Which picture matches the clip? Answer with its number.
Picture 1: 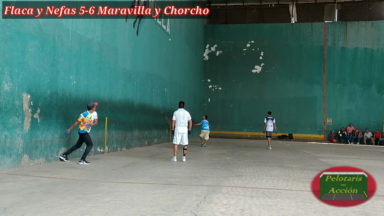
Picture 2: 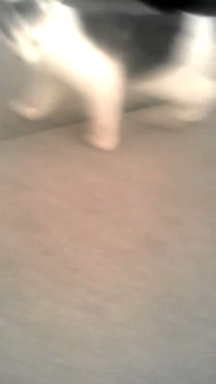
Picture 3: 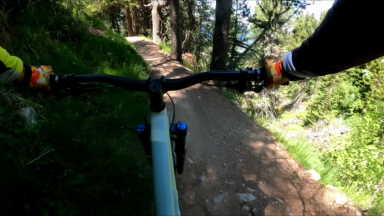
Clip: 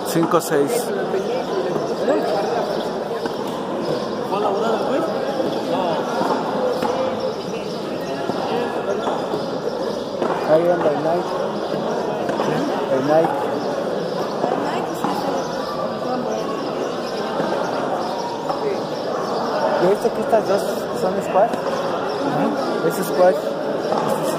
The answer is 1